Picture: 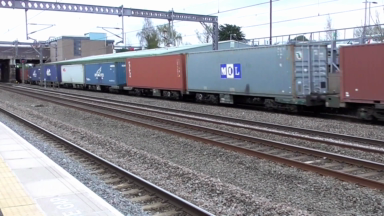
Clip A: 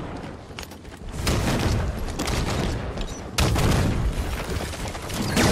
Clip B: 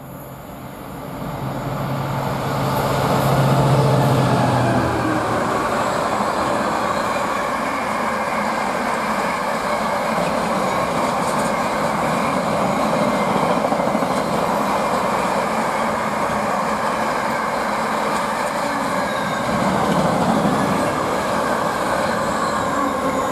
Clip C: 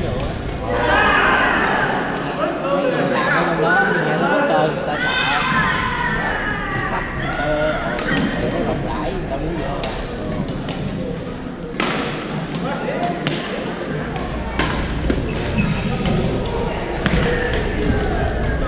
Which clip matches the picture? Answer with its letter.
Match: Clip B